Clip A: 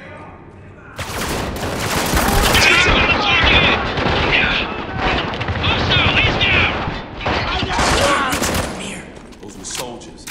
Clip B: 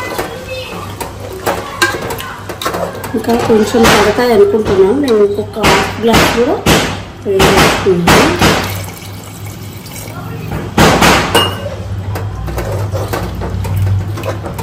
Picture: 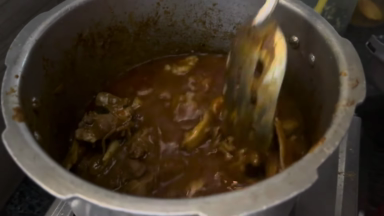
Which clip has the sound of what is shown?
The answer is B